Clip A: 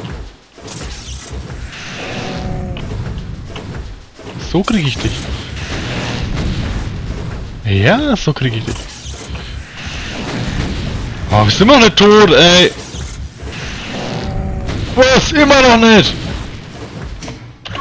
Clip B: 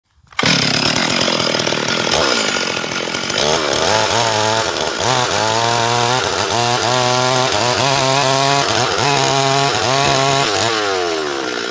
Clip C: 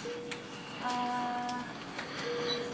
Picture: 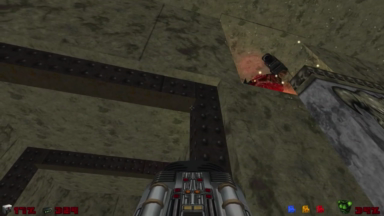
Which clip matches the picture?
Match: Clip A